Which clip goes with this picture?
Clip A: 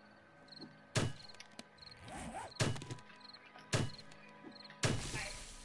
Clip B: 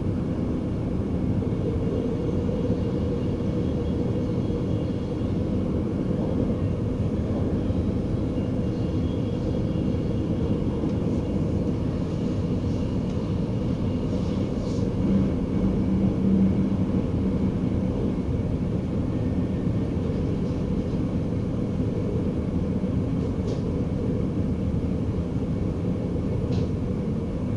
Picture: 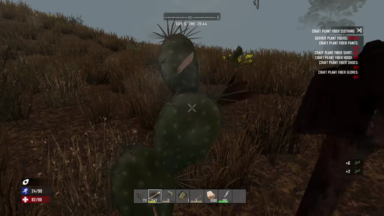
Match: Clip A